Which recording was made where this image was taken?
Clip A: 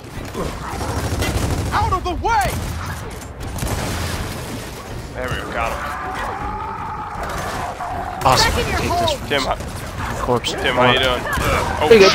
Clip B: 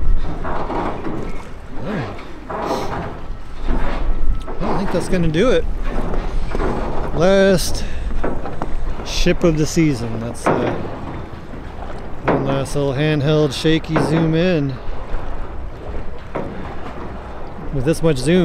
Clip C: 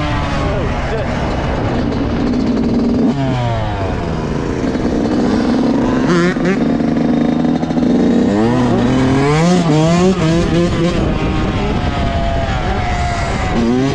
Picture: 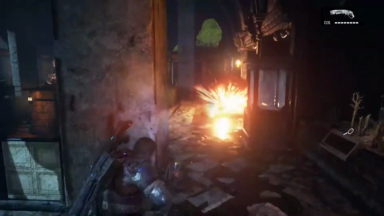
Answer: A